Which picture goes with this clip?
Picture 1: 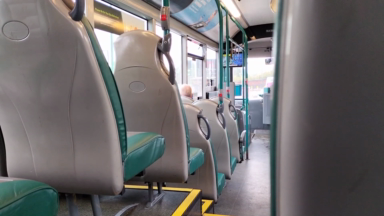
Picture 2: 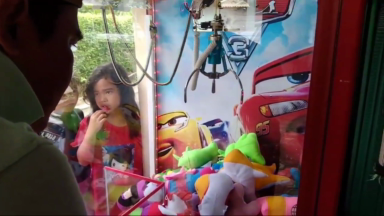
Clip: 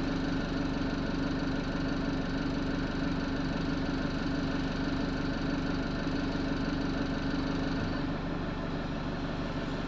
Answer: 1